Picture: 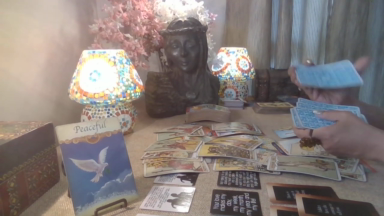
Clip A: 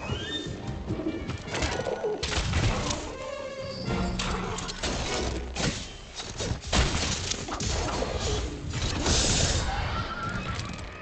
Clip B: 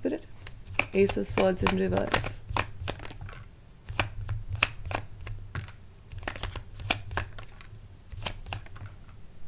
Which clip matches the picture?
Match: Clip B